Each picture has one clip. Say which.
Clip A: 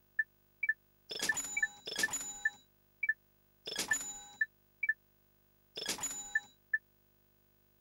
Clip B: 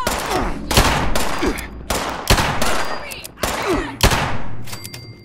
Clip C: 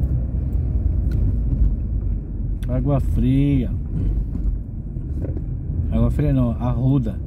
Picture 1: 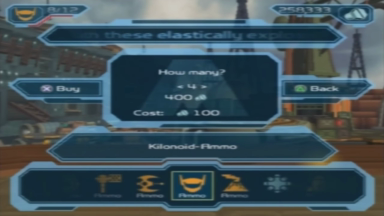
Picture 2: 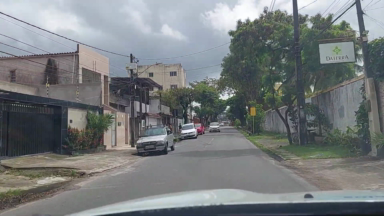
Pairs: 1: A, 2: C